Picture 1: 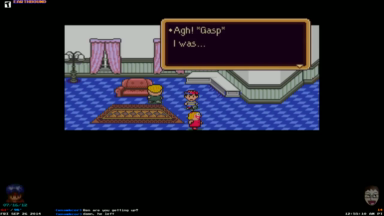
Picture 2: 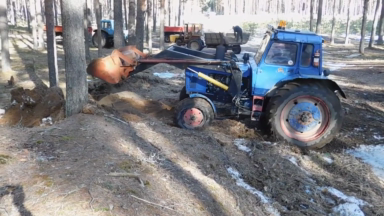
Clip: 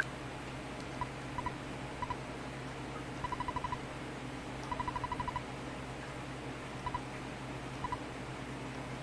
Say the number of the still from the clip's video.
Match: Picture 1